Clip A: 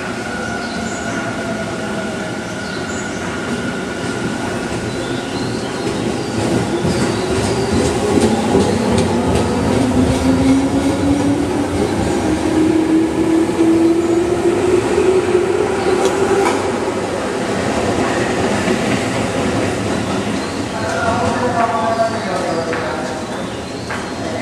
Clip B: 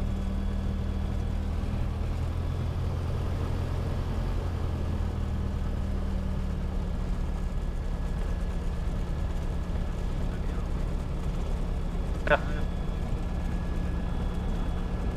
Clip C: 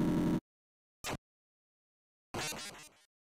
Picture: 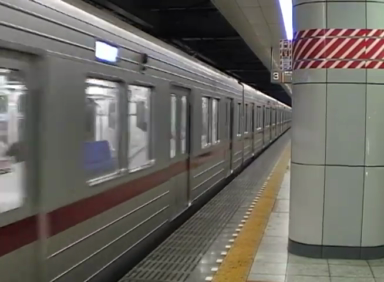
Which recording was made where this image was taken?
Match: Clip A